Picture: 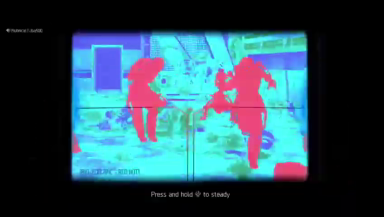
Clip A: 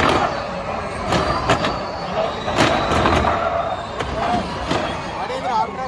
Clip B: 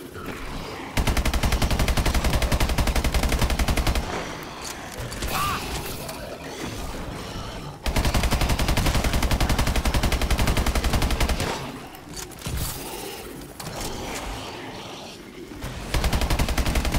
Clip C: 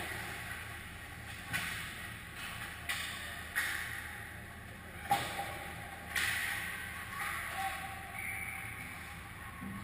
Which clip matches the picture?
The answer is B